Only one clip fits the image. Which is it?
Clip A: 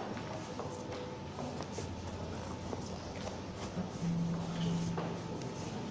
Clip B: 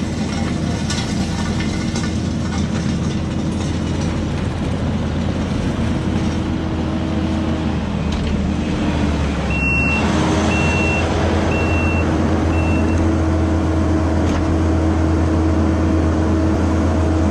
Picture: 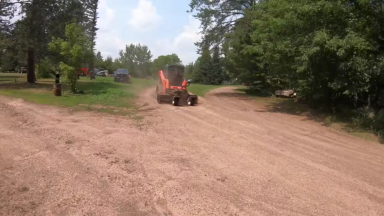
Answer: B